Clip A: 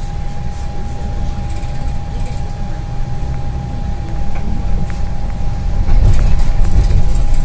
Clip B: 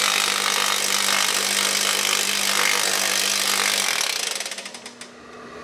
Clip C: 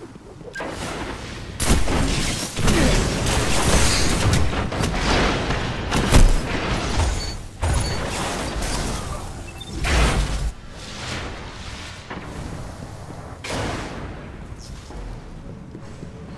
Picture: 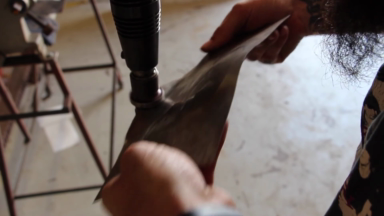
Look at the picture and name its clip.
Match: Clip B